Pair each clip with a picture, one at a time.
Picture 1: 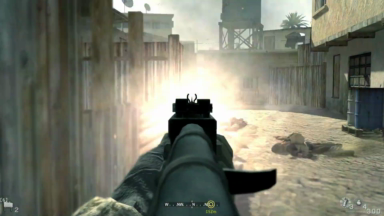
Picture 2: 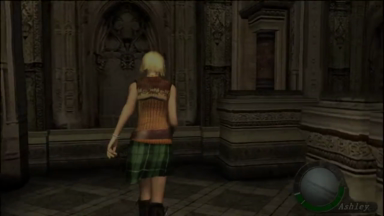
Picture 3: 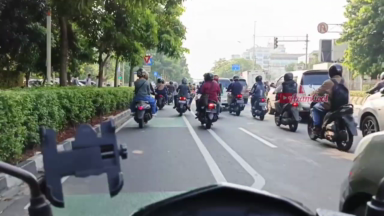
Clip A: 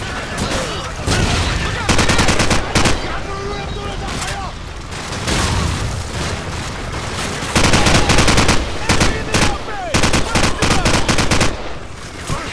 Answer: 1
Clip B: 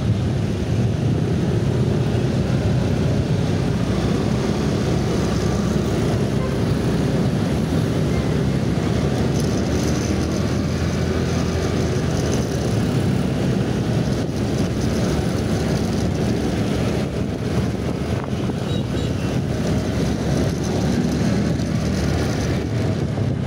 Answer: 3